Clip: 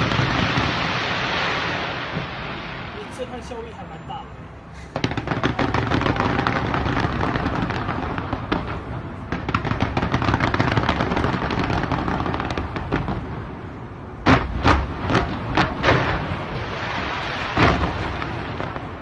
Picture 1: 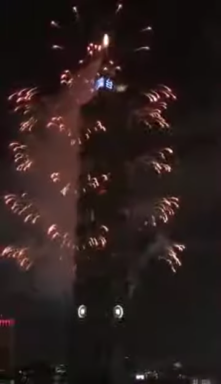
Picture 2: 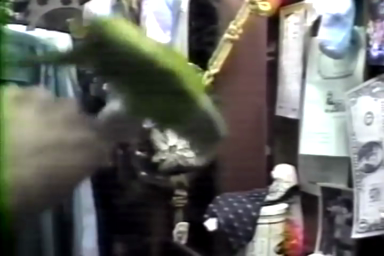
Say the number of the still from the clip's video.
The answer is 1